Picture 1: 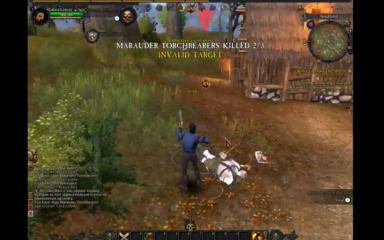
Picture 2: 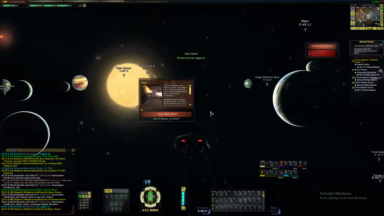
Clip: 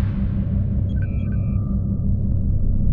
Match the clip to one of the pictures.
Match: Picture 2